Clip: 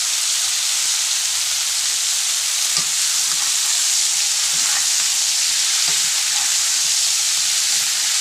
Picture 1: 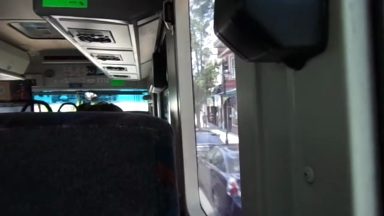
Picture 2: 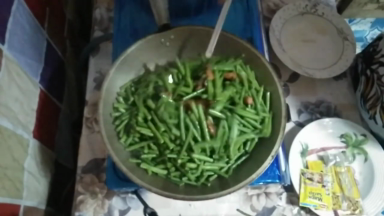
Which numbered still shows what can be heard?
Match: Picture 2